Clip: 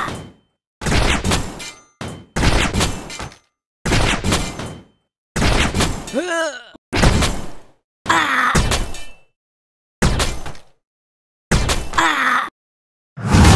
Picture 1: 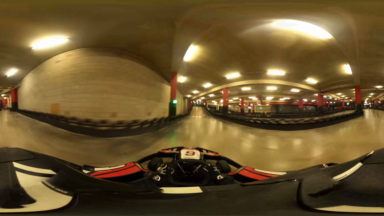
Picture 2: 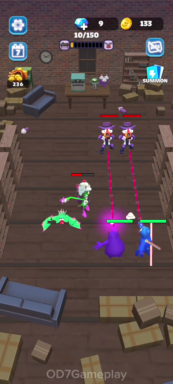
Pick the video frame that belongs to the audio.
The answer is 2